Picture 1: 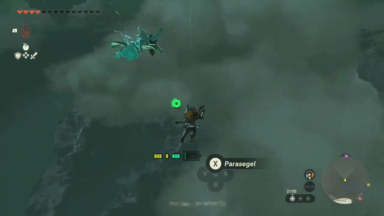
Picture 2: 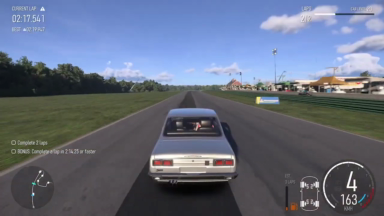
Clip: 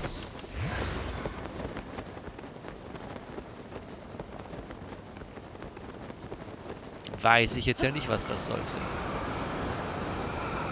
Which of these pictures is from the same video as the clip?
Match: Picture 1